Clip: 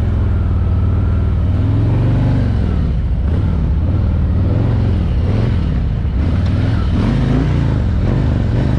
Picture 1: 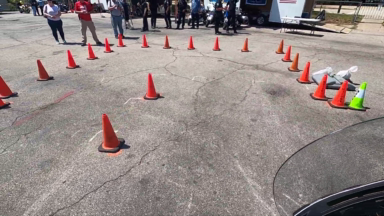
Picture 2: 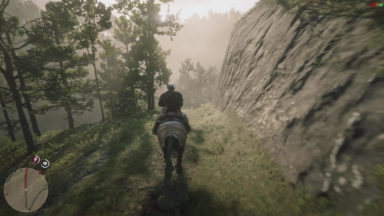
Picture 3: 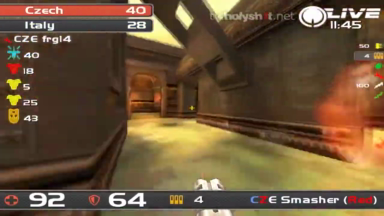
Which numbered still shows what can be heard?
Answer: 1